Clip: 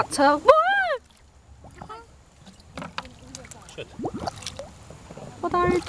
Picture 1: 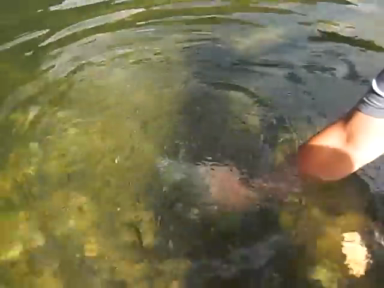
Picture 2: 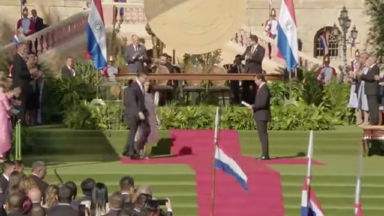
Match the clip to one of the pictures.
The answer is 1